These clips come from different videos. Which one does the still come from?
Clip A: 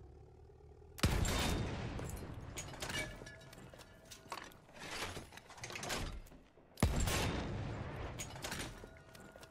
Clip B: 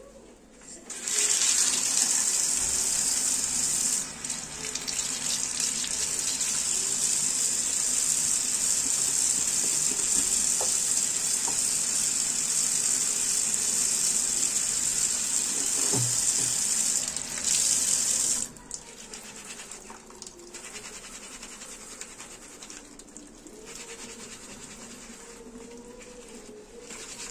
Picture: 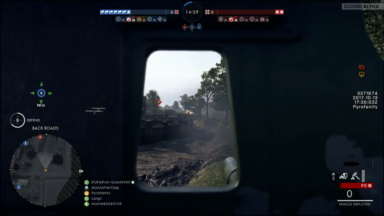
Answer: A